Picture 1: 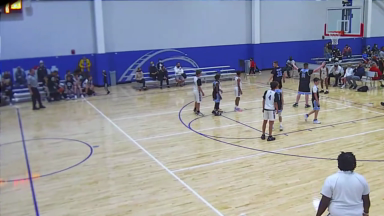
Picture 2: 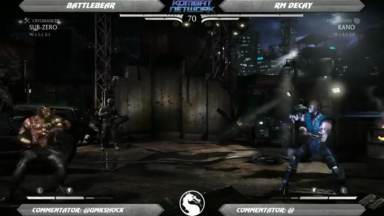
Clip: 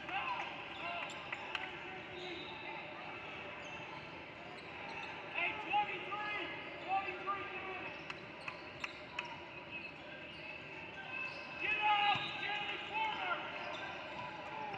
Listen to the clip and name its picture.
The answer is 1